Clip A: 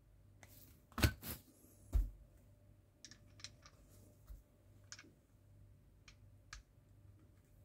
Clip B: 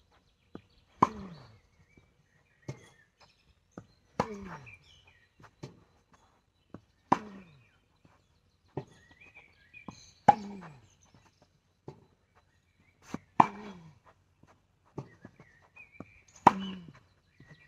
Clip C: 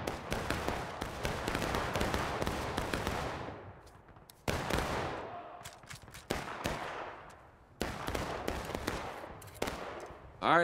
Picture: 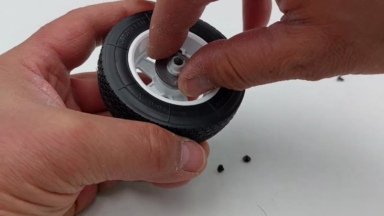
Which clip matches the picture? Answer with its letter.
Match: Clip A